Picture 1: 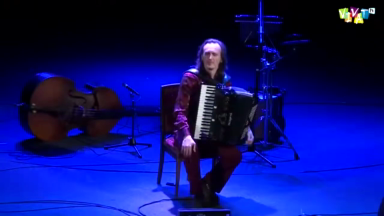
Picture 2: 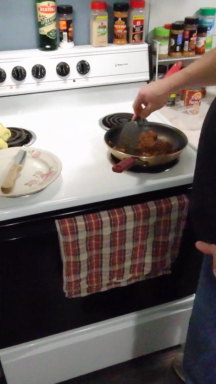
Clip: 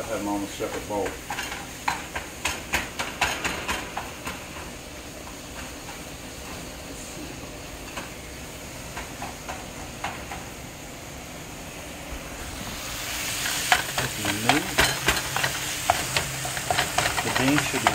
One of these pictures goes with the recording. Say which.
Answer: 2